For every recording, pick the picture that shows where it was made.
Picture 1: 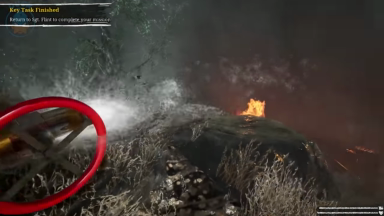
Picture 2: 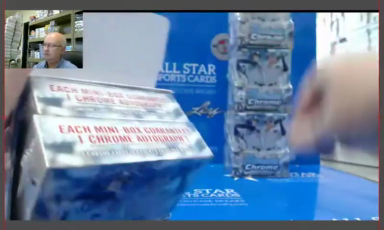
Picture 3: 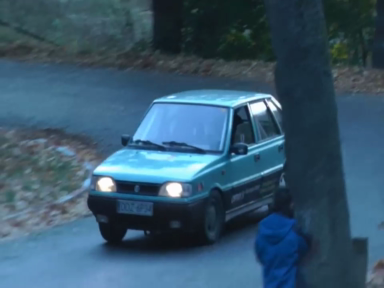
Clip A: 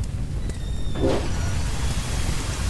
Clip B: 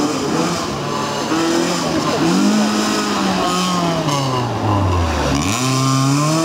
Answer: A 1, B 3